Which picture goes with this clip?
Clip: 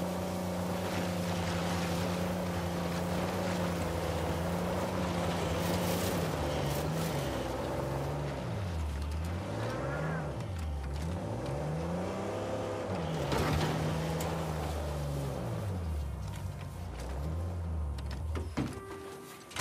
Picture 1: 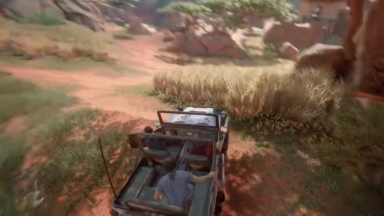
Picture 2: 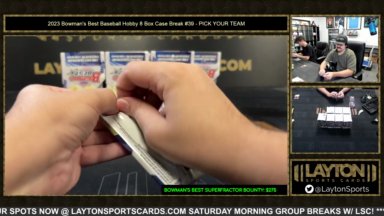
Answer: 1